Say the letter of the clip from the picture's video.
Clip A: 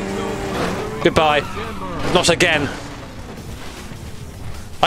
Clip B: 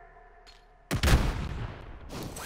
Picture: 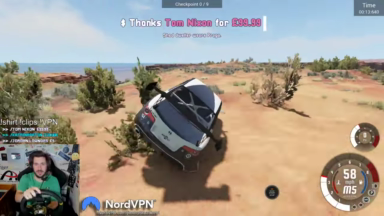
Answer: A